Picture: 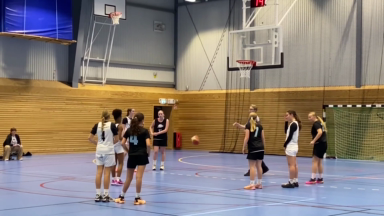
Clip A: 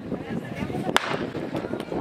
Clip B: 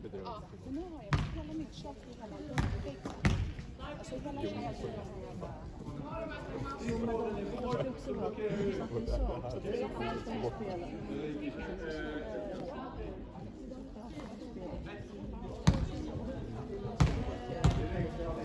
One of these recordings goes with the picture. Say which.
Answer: B